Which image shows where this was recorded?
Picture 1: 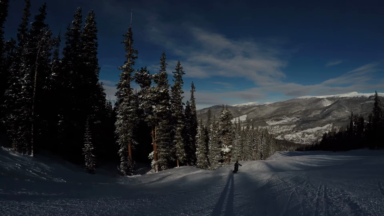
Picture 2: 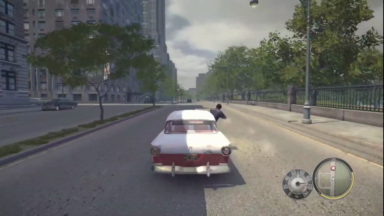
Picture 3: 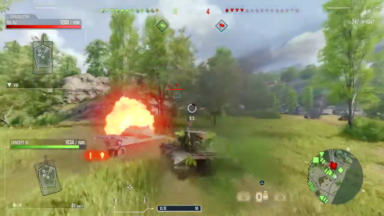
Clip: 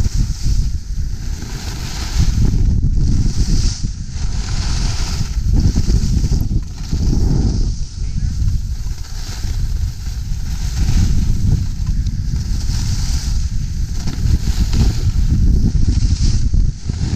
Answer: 1